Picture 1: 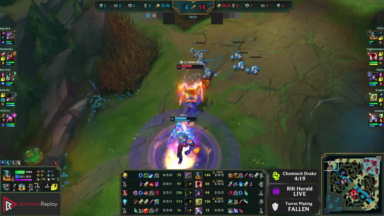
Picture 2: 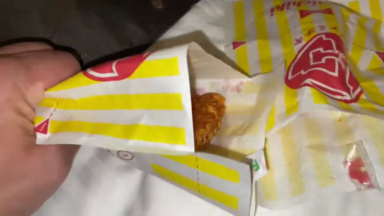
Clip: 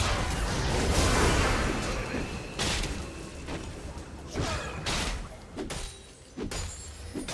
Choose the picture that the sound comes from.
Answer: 1